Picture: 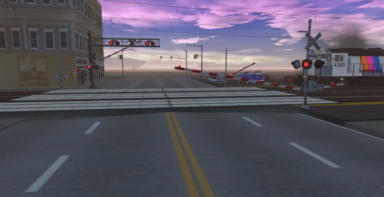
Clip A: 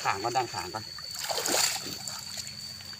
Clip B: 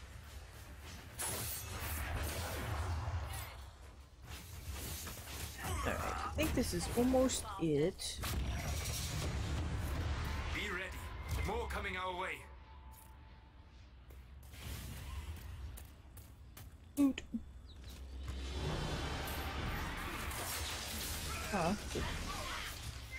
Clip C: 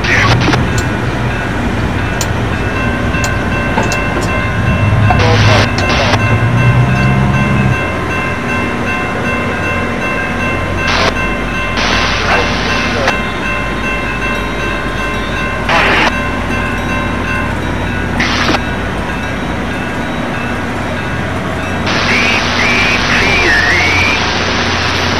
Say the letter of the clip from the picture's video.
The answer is C